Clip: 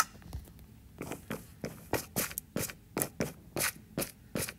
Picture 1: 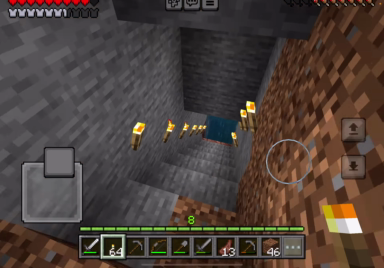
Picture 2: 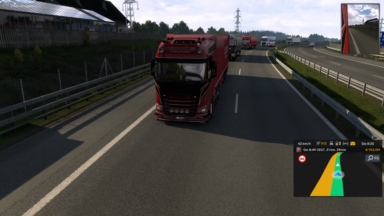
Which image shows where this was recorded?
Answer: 1